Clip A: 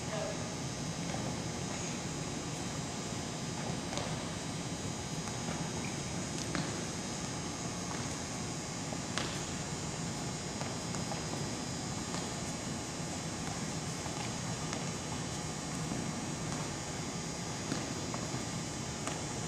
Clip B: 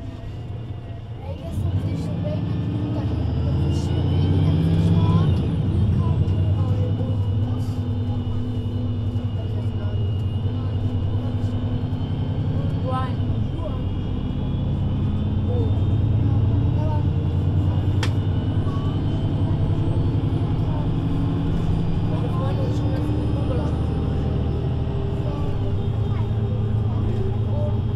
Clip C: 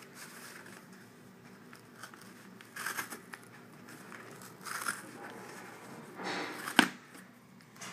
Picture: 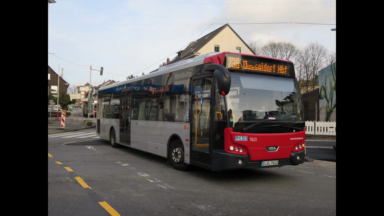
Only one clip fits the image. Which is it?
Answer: B